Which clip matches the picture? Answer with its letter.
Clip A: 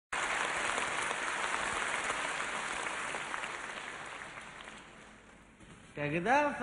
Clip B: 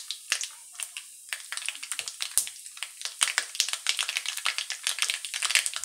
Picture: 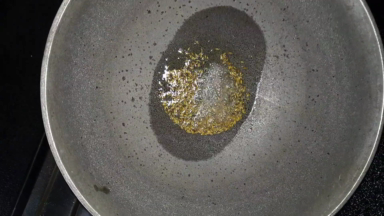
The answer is B